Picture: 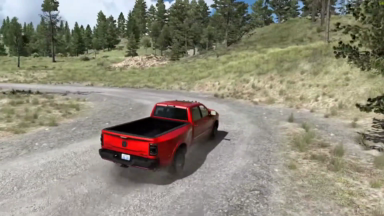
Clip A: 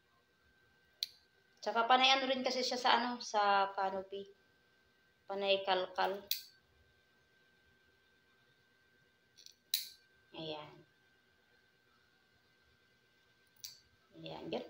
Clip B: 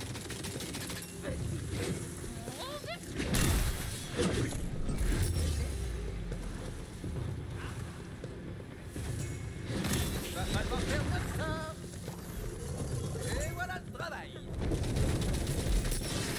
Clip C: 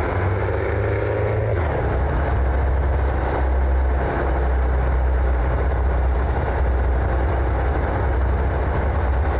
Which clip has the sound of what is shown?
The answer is C